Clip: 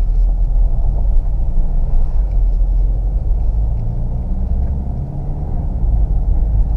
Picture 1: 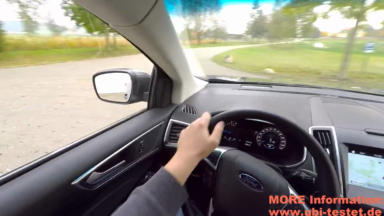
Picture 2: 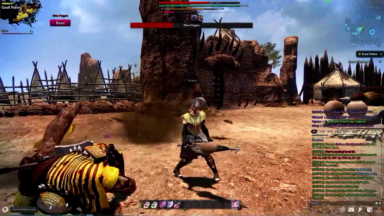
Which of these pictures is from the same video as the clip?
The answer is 1